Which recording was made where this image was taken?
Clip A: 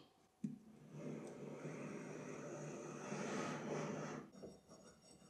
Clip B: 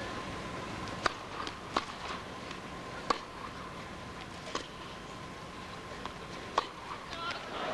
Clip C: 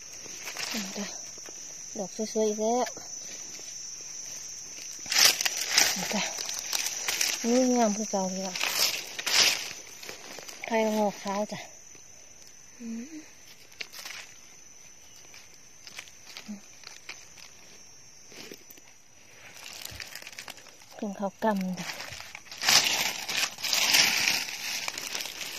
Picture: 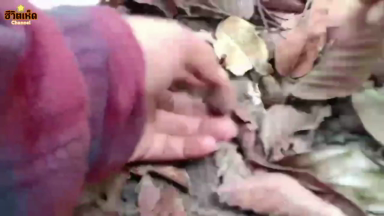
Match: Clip C